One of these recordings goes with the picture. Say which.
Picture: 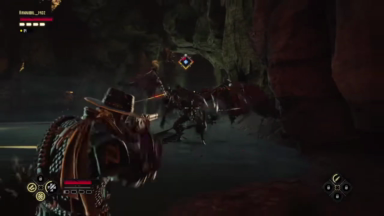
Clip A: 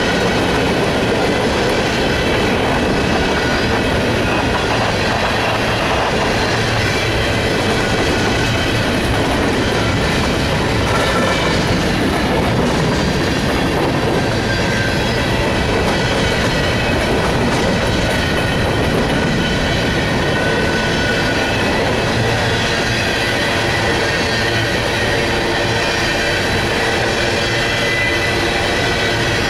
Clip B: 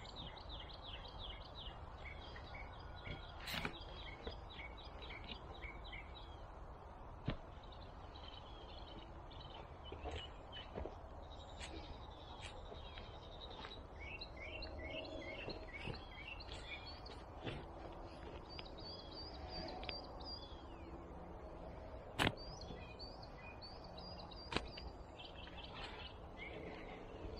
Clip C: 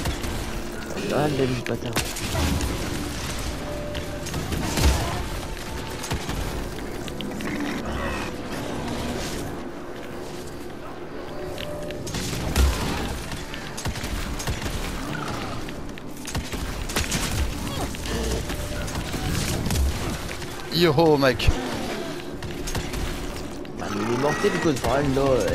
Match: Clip C